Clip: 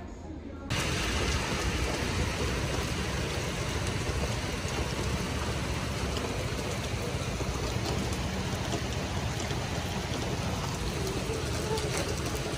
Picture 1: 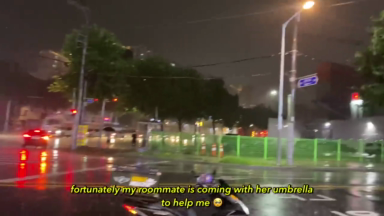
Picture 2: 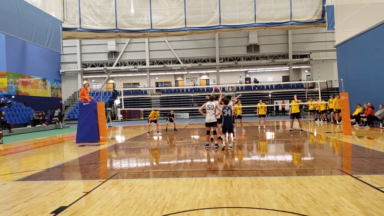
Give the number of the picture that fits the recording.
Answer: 1